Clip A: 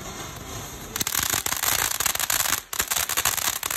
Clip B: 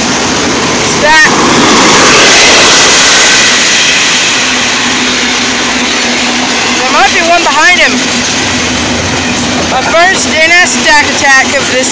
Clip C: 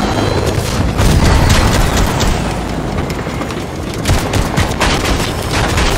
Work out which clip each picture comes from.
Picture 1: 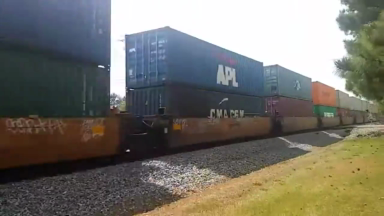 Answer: B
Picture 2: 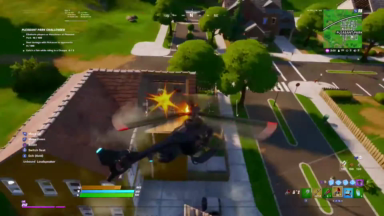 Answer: C